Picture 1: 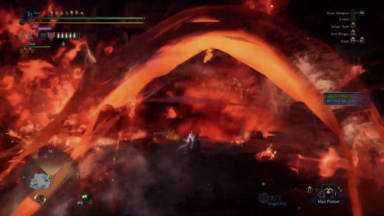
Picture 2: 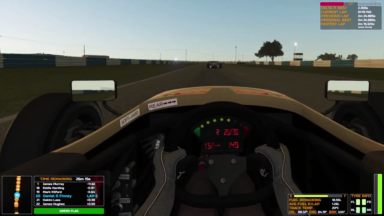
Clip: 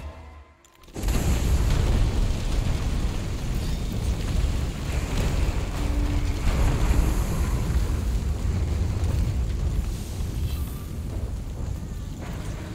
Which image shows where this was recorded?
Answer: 1